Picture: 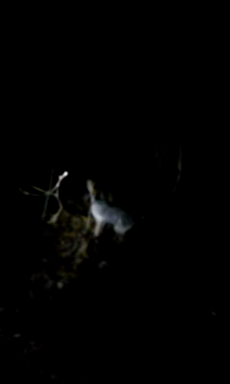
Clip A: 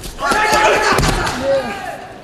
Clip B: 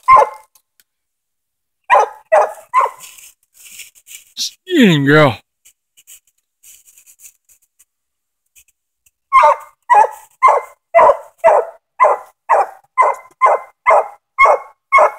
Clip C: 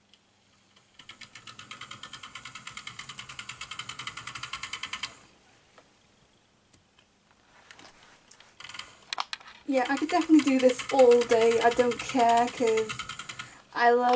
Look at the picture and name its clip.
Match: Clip B